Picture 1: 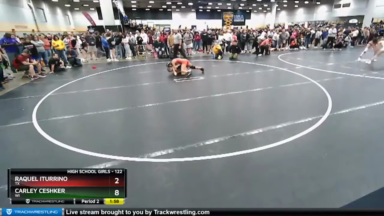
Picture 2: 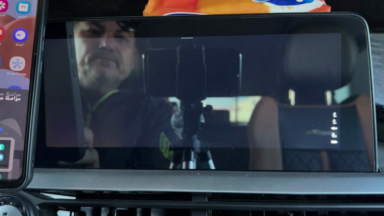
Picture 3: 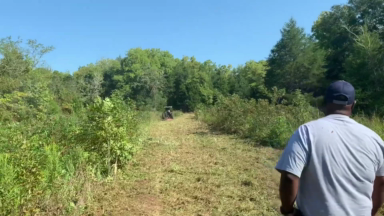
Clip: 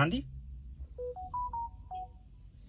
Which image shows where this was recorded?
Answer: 2